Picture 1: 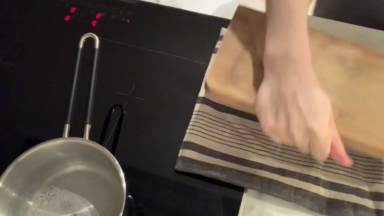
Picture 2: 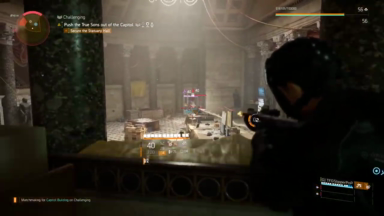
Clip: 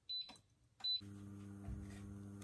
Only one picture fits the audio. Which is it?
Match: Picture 1